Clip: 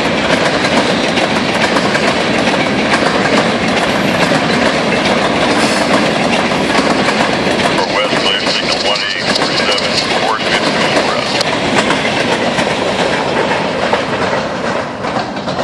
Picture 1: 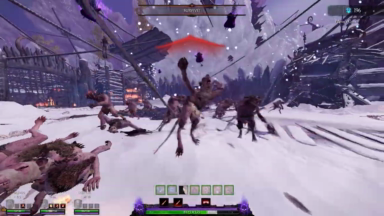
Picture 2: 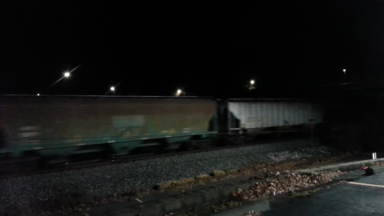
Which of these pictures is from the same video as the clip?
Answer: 2